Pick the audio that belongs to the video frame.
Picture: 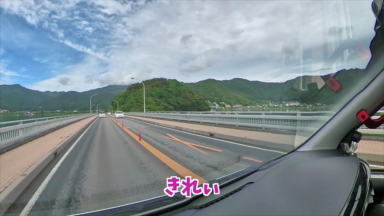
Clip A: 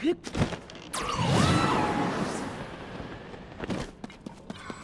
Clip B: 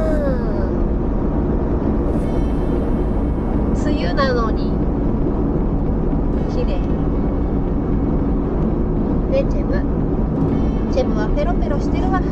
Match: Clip B